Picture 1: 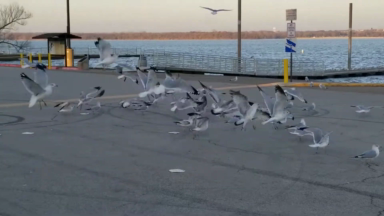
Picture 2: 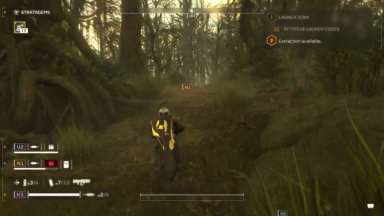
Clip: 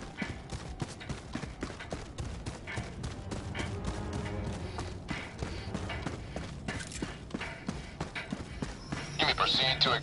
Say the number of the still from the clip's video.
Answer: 2